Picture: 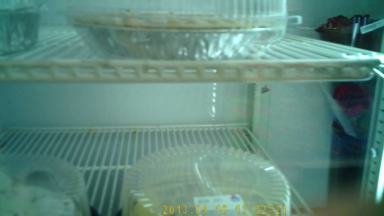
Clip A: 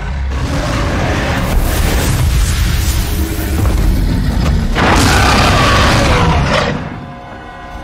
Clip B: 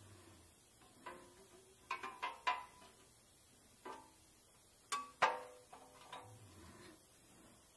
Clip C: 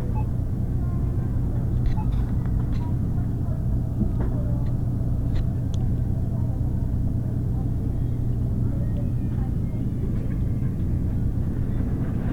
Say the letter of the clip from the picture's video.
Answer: C